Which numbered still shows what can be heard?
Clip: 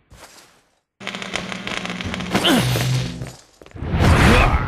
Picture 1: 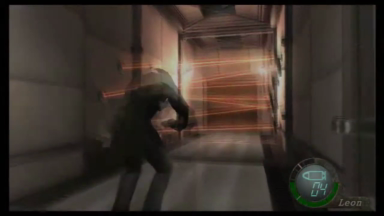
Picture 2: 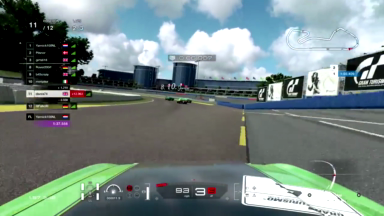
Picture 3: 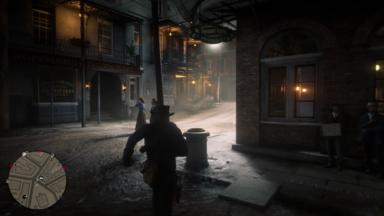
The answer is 1